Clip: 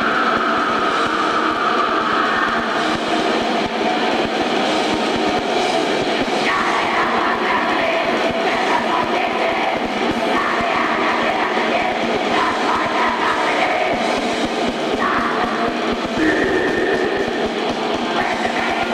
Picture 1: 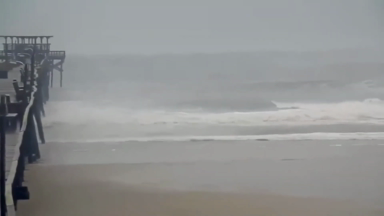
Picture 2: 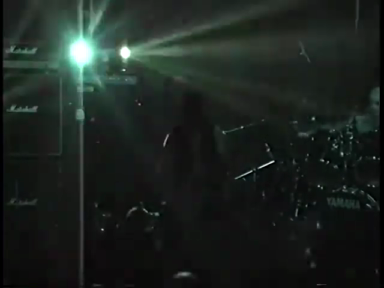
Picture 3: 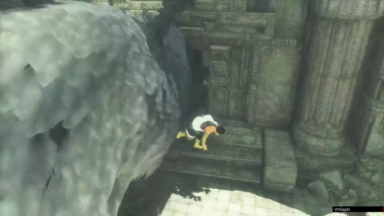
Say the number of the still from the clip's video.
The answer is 2